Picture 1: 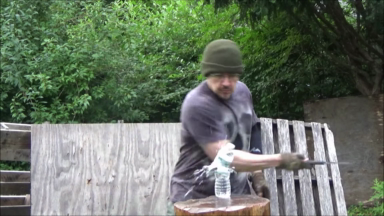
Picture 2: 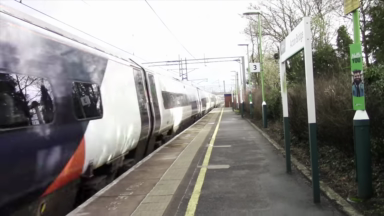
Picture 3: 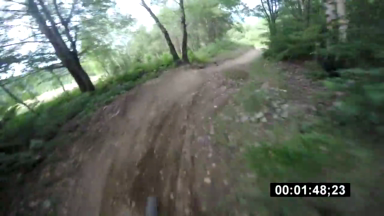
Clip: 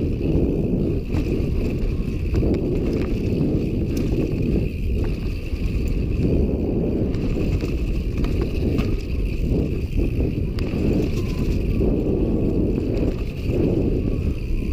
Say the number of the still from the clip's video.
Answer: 3